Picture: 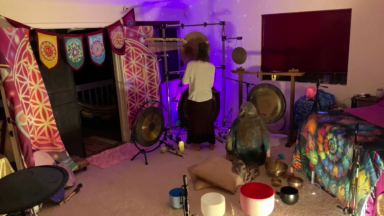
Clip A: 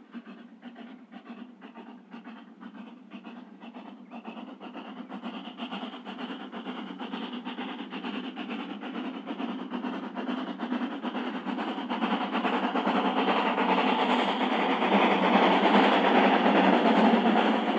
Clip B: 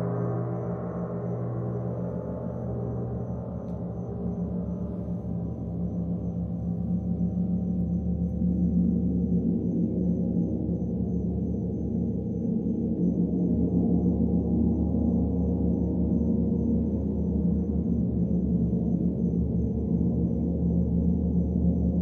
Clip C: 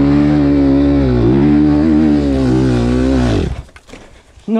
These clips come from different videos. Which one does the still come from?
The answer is B